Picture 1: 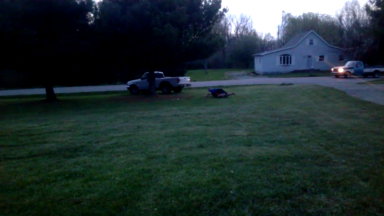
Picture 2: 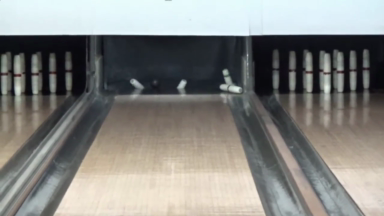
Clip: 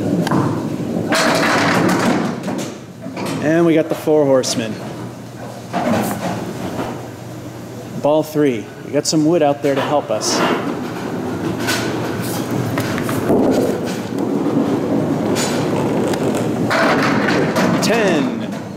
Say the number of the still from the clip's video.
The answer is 2